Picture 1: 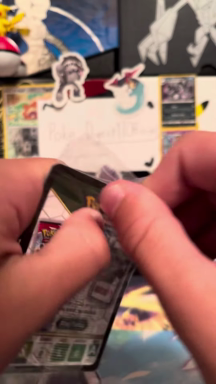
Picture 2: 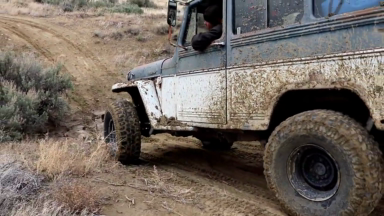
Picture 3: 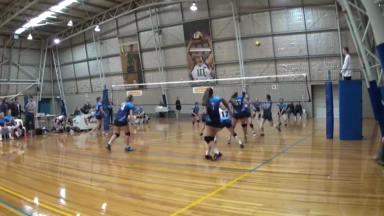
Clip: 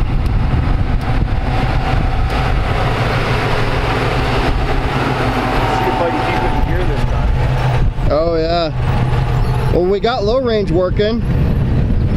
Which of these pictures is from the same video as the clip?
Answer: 2